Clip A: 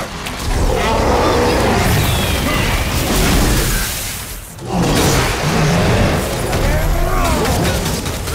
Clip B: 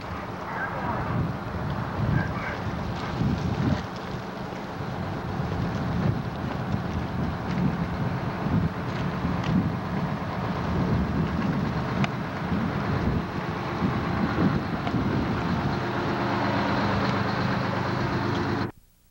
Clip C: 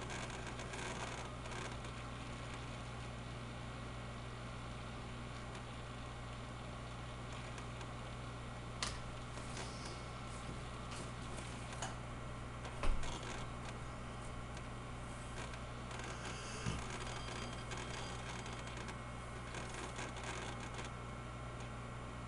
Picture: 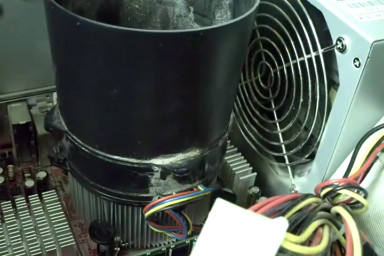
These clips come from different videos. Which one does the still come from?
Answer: C